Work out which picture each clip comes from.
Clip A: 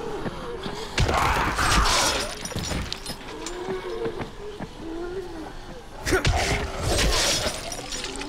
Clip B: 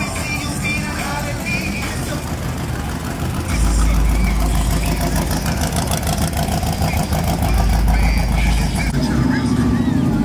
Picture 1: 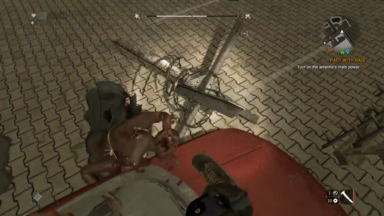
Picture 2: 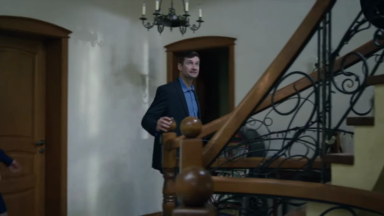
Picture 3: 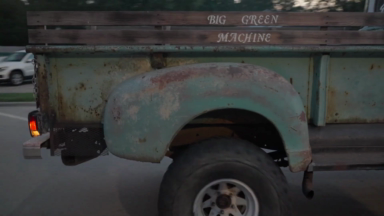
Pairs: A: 1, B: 3